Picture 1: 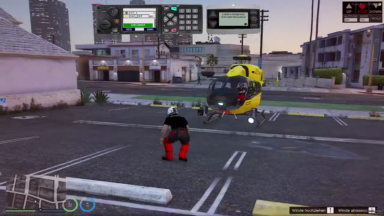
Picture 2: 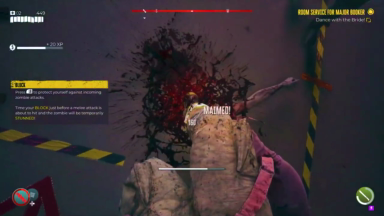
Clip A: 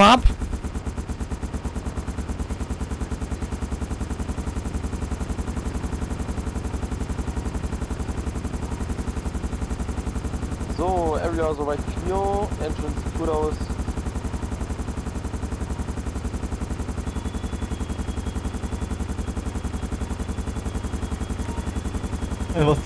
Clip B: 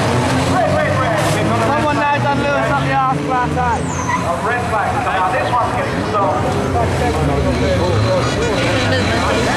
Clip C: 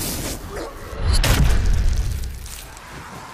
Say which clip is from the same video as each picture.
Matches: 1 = A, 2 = C